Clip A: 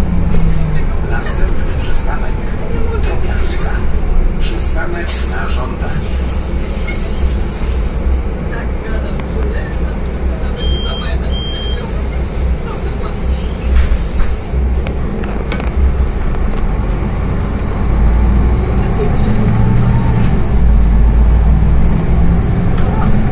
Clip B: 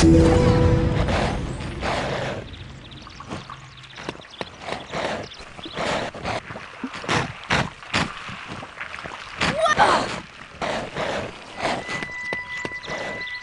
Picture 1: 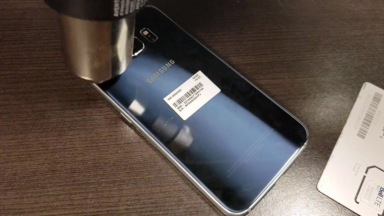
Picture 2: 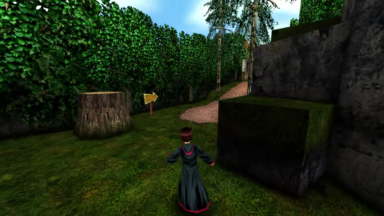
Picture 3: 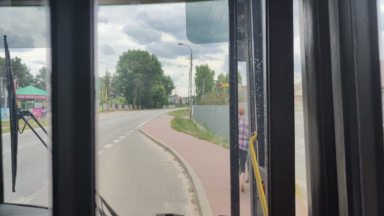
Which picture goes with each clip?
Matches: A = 3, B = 2